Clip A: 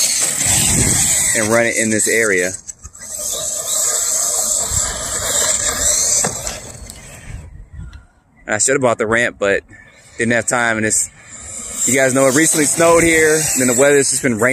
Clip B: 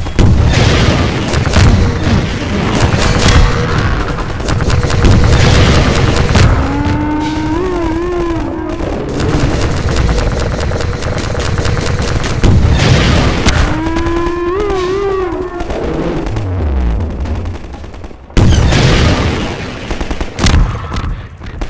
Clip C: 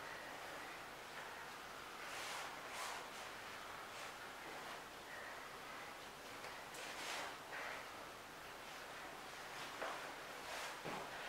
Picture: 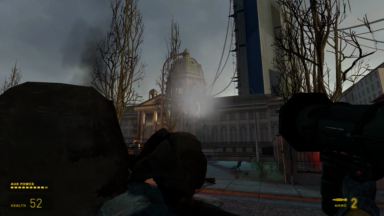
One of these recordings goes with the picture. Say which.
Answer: B